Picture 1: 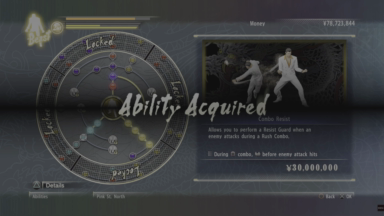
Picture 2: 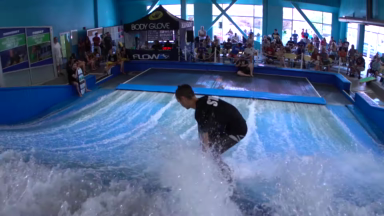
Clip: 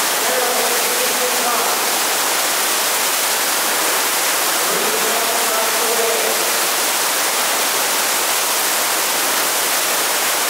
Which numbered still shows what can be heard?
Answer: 2